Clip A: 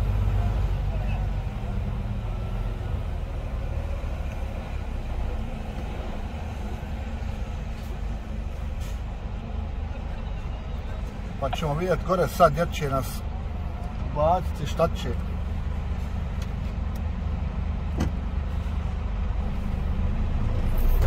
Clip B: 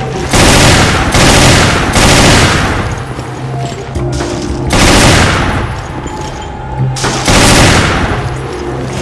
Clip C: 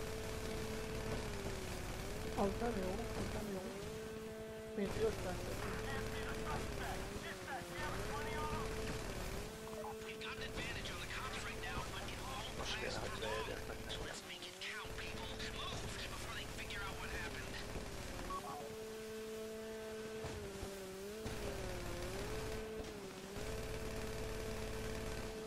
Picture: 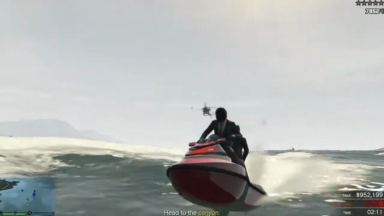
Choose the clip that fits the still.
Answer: C